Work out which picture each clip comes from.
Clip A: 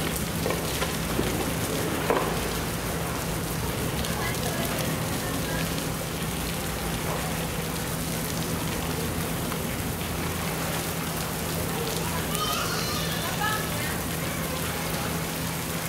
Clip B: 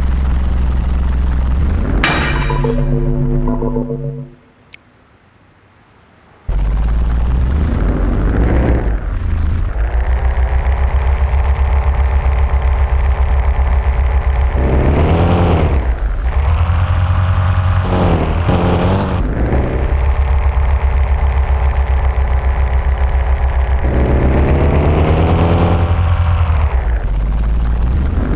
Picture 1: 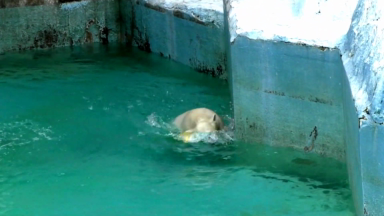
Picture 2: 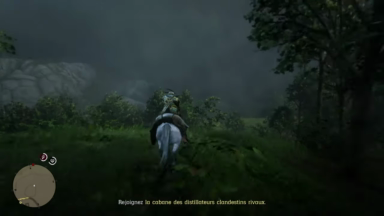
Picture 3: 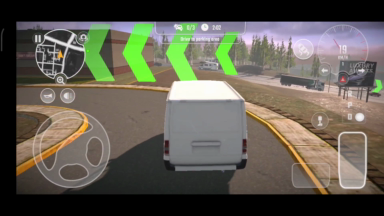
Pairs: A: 1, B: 3